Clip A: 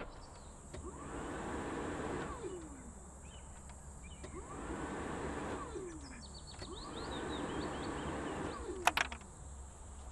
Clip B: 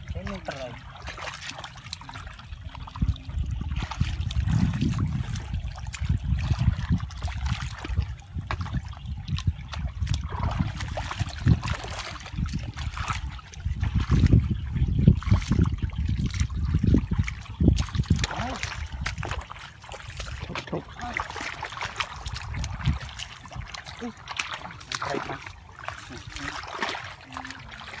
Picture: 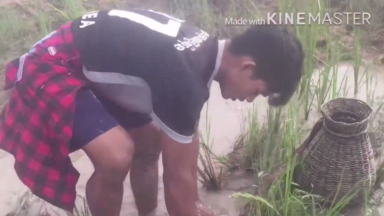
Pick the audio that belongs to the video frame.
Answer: B